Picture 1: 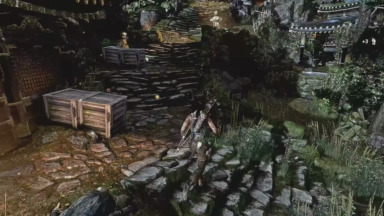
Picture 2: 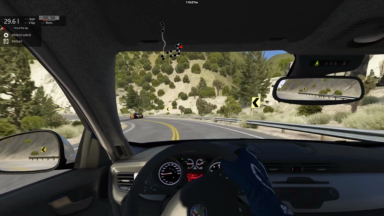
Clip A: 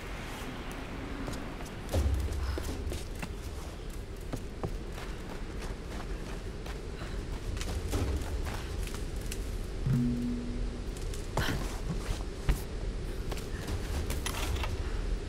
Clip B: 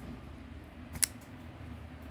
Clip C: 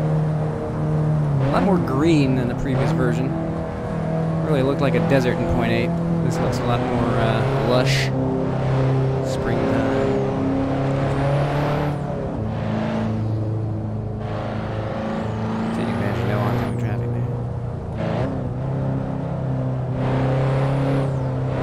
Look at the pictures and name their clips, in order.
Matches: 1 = A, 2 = C